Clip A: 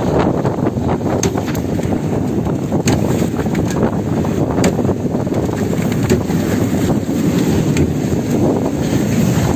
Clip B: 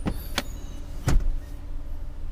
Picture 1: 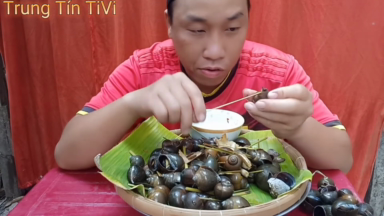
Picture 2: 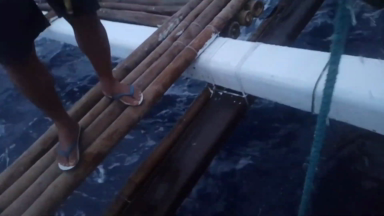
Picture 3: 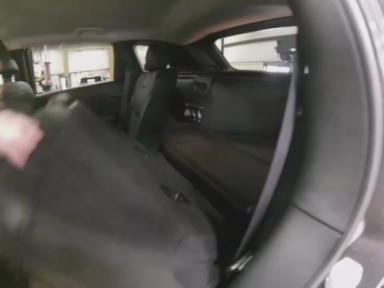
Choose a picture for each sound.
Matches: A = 2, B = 3